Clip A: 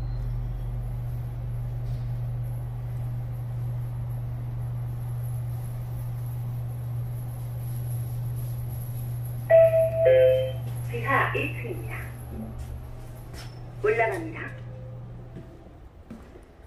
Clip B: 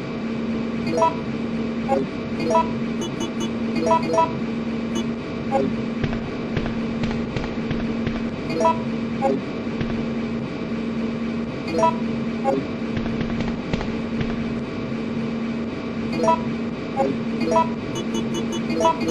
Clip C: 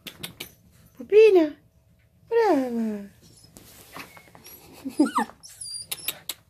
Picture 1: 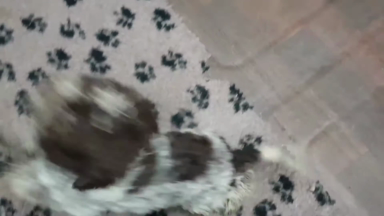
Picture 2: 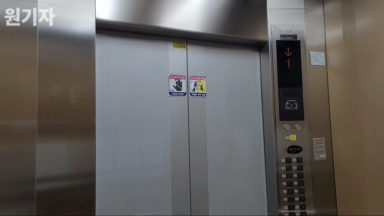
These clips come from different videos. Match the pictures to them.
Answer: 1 C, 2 A